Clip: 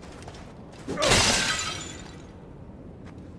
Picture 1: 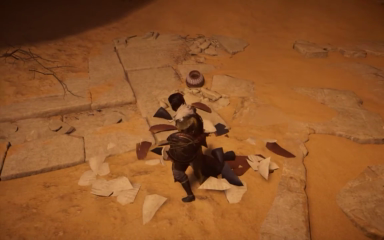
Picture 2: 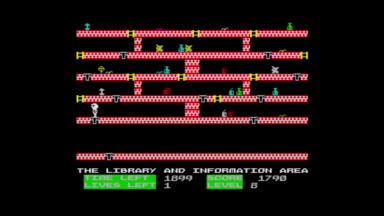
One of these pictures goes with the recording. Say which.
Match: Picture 1